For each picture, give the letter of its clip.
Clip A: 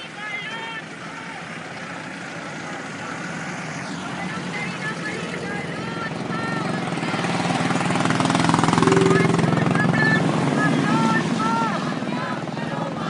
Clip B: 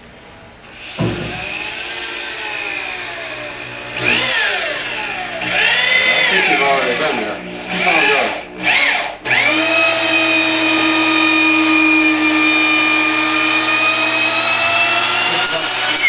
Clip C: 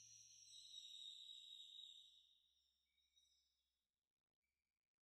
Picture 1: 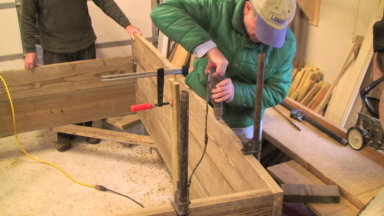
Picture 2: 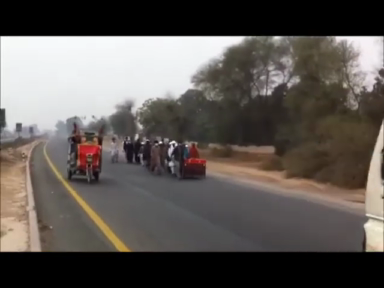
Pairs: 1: B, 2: A